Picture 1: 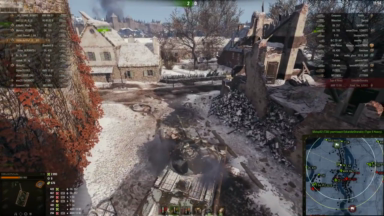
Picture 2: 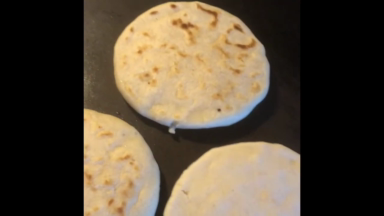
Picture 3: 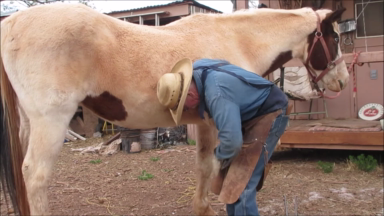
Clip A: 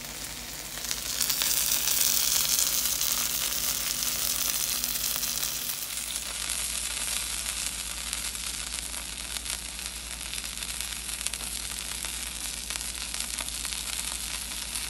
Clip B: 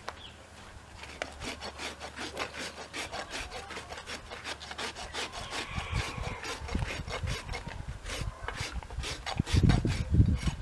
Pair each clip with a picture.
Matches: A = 2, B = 3